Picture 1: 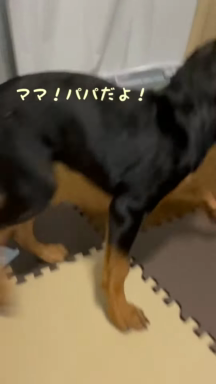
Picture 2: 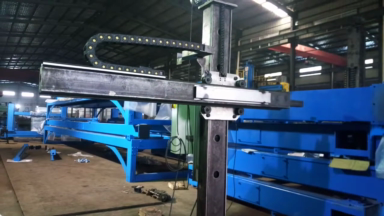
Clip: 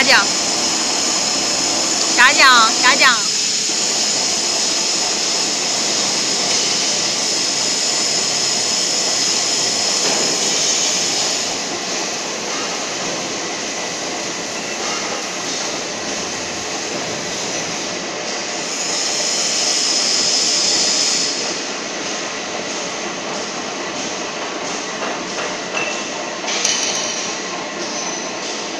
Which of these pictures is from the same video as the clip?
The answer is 2